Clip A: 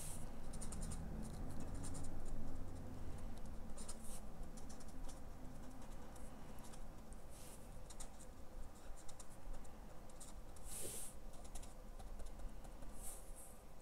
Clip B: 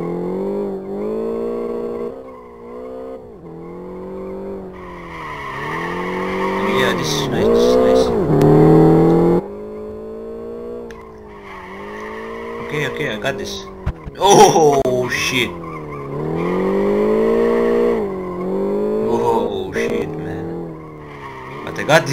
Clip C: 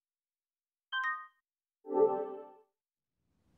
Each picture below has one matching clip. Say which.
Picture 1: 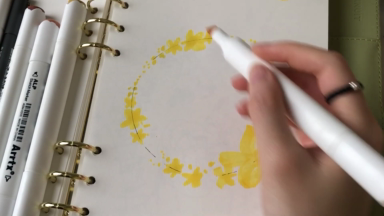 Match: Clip A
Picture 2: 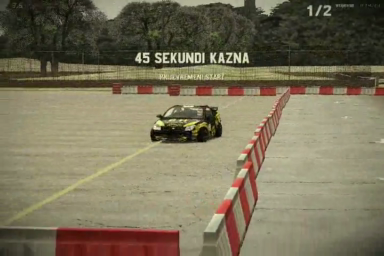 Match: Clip B